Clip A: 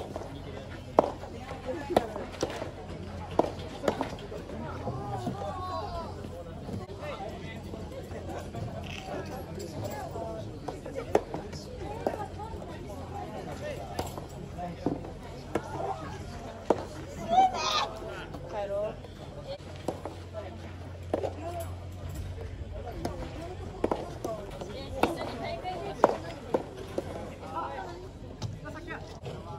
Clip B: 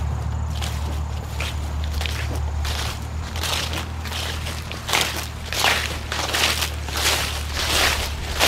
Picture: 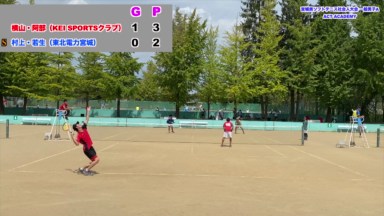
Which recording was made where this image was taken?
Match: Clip A